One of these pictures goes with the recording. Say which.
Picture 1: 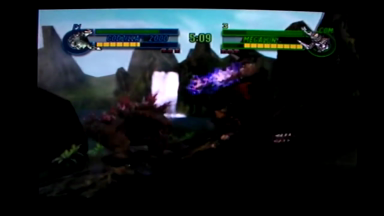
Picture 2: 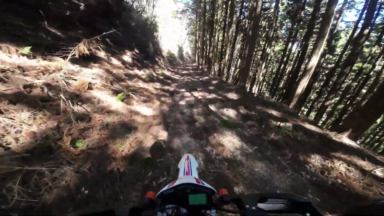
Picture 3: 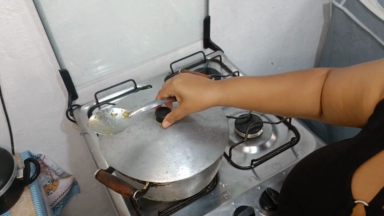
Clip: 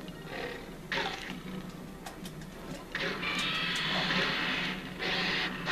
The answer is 1